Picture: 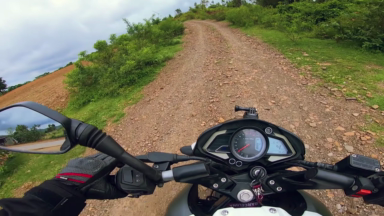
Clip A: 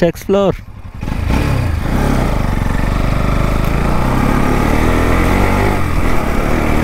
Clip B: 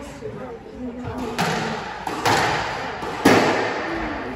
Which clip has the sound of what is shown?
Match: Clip A